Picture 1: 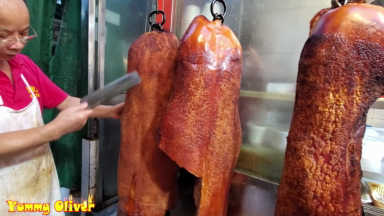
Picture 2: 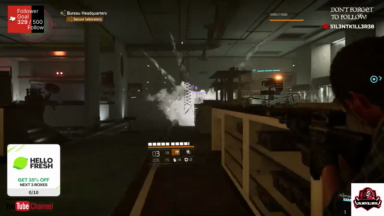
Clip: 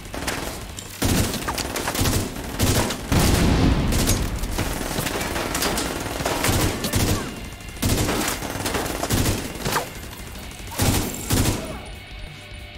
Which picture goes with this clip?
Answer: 2